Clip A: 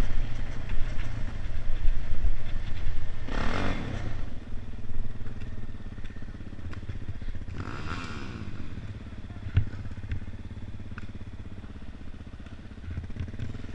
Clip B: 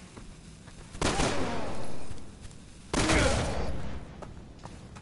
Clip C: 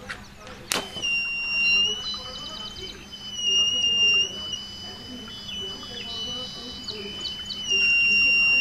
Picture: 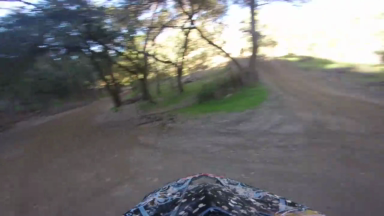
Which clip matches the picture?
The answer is A